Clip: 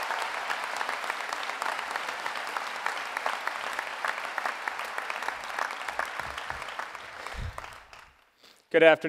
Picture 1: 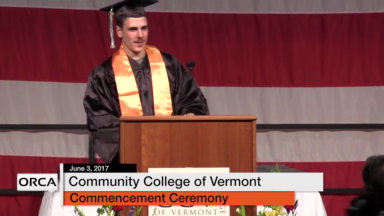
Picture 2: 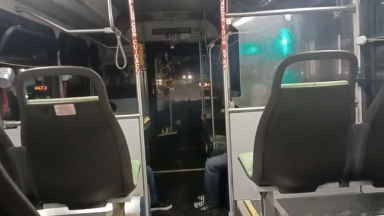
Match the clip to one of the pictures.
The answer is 1